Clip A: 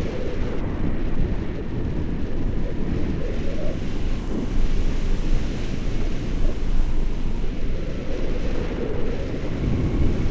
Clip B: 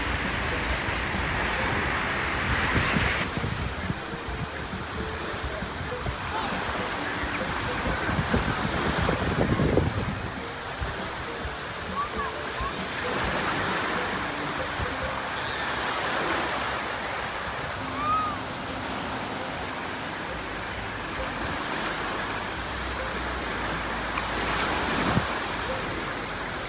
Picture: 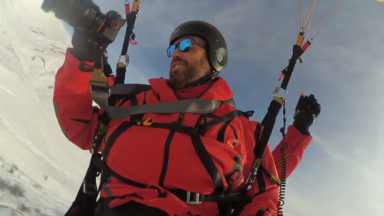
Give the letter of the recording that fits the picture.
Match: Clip A